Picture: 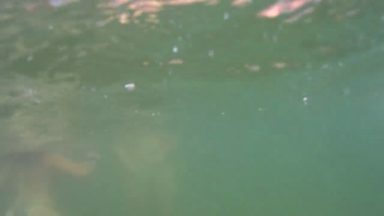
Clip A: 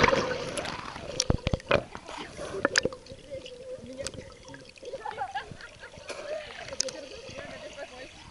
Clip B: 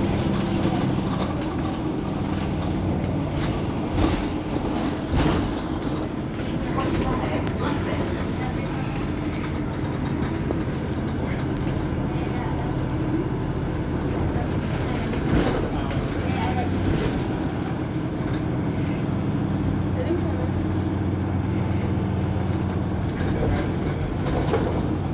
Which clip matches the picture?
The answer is A